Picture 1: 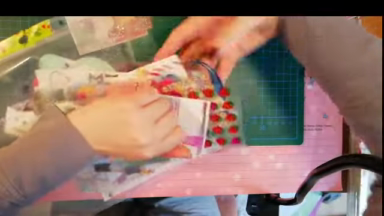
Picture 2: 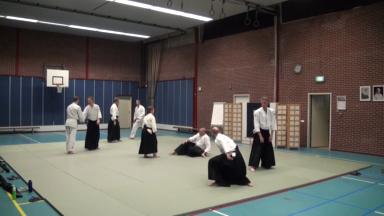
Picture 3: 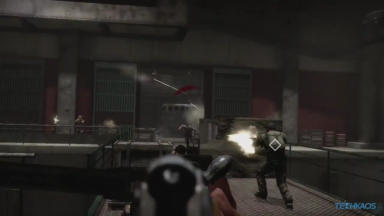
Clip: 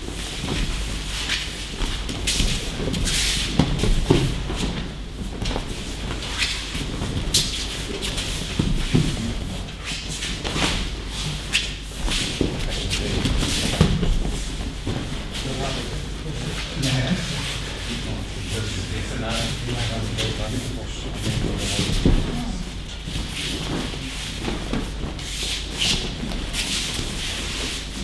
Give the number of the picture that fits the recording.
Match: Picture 2